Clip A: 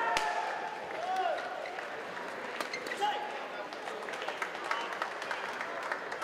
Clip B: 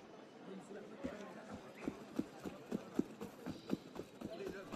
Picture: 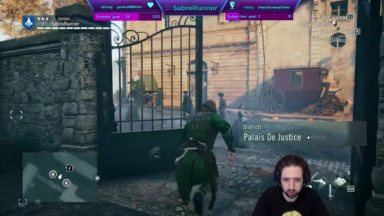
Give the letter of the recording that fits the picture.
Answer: B